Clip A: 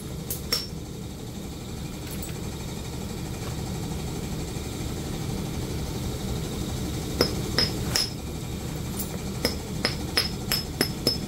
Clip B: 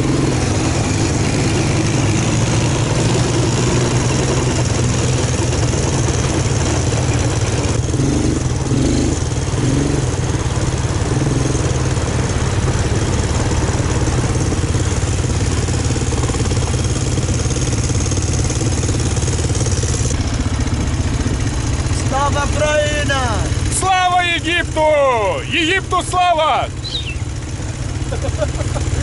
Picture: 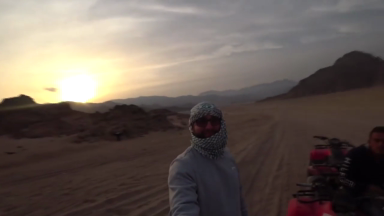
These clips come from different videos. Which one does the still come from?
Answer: B